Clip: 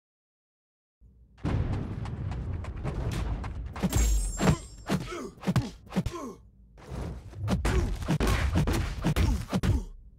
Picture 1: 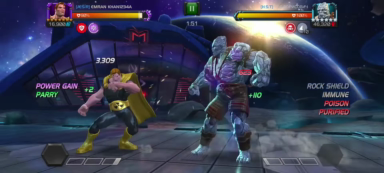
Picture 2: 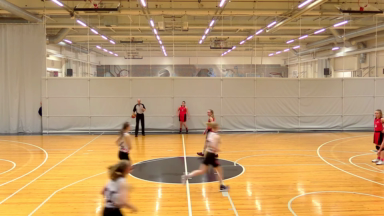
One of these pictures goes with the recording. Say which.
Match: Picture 1